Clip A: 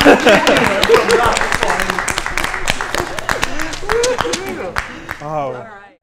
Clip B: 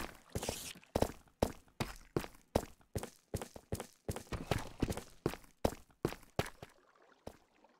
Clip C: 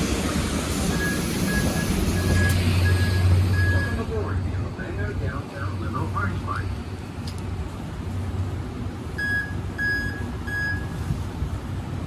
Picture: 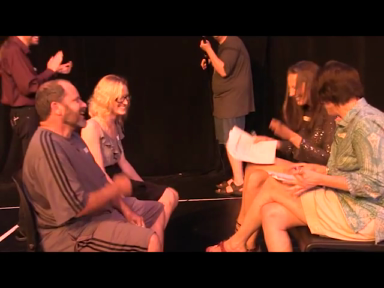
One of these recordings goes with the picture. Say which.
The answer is A